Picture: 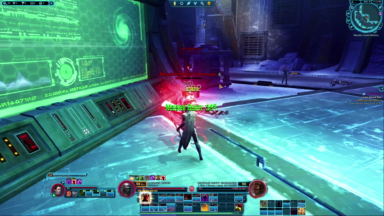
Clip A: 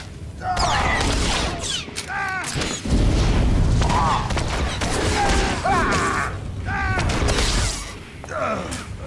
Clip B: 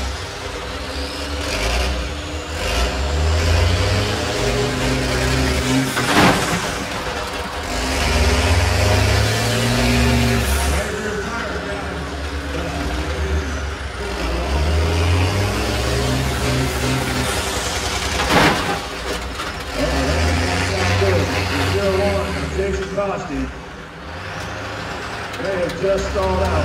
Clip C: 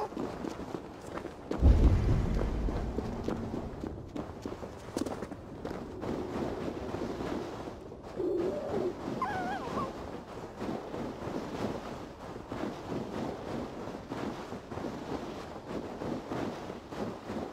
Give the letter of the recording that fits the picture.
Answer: A